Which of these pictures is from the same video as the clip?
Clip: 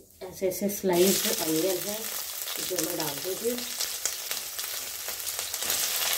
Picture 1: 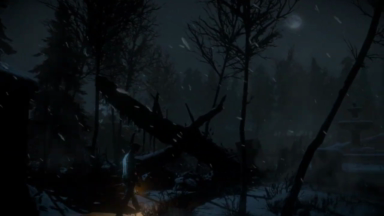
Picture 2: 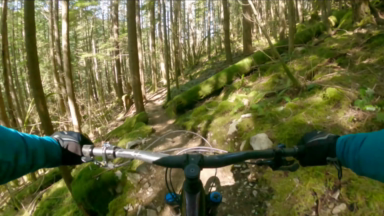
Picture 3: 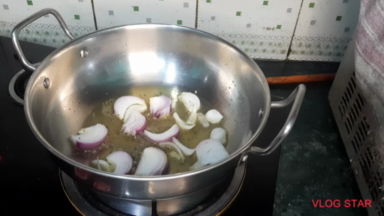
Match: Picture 3